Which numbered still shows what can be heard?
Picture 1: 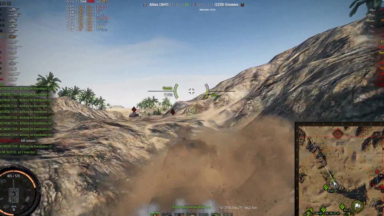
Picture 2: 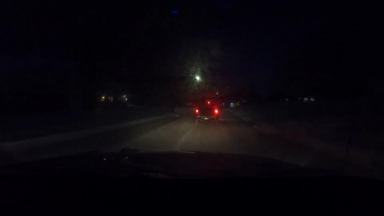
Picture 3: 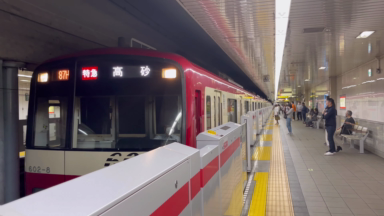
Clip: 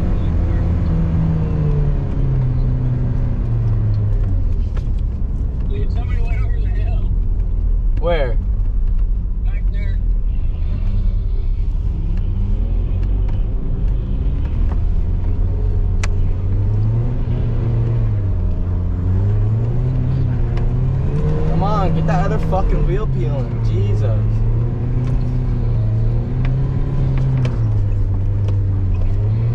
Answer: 2